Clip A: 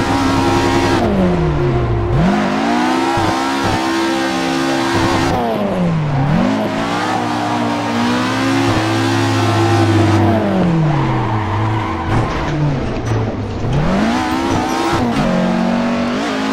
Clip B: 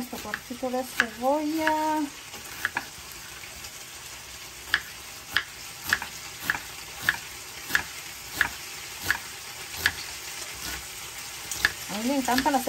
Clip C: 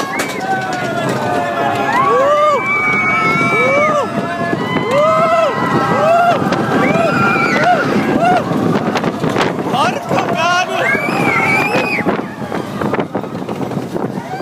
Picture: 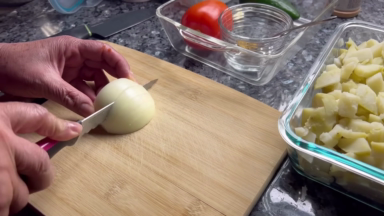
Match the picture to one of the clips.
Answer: B